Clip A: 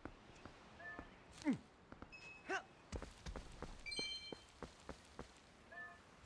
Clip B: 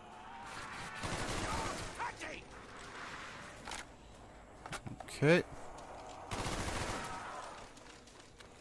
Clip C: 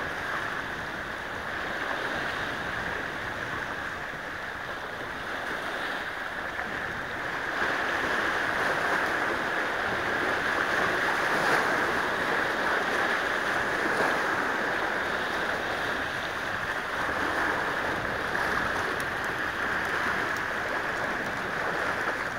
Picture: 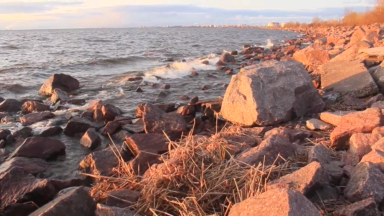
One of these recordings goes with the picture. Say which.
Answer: C